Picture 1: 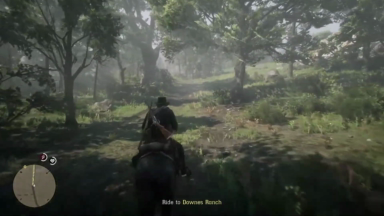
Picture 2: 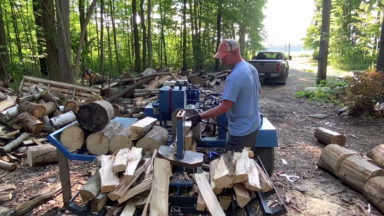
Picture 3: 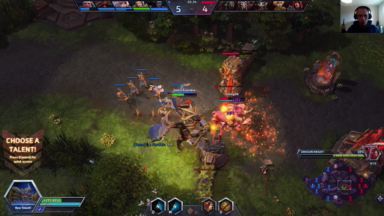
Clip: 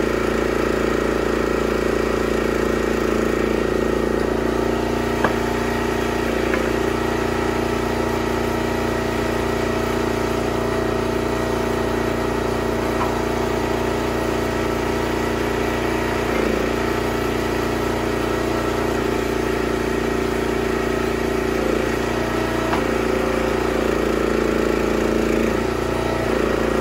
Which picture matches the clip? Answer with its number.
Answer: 2